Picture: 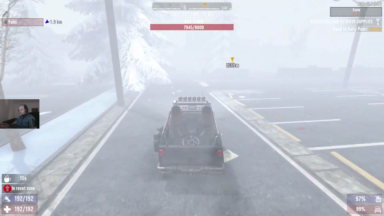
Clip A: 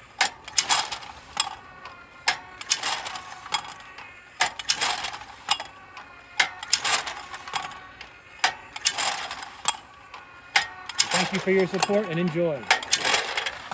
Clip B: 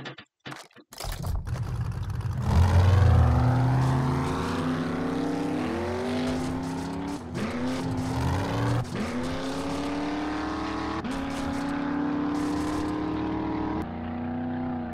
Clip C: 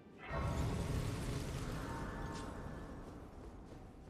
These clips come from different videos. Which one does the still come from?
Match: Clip B